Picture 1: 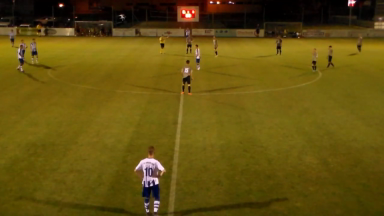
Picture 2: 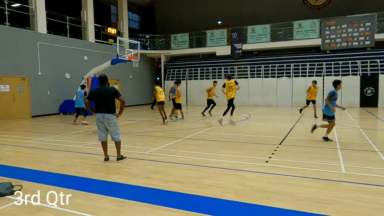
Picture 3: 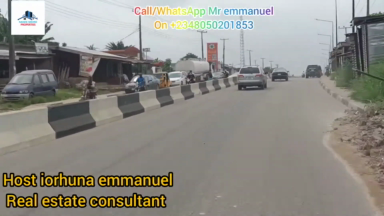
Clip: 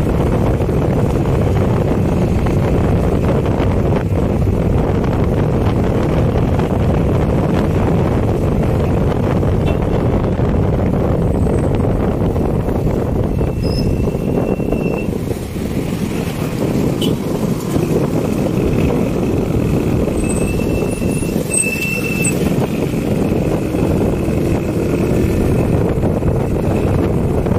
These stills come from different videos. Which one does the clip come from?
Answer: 3